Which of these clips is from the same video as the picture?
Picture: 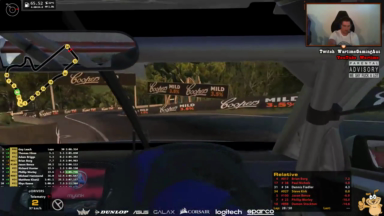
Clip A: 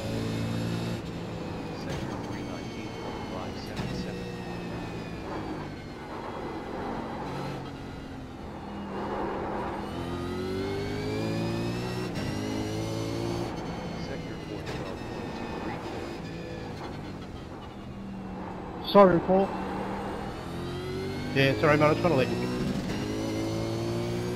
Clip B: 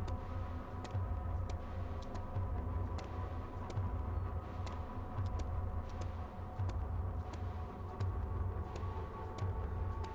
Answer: A